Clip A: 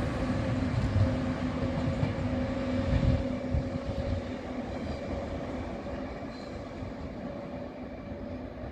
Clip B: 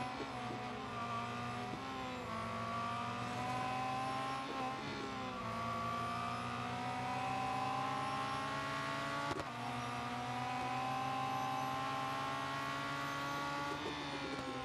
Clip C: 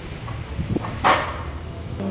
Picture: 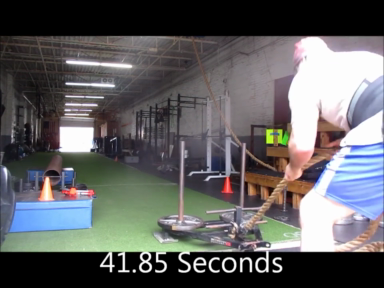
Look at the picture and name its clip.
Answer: C